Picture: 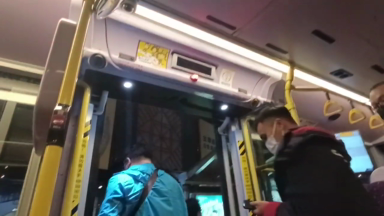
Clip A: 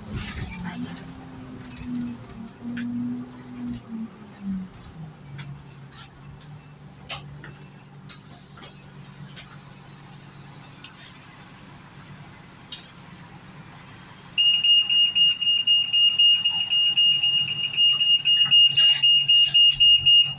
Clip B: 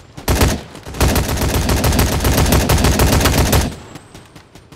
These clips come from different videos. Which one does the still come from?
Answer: A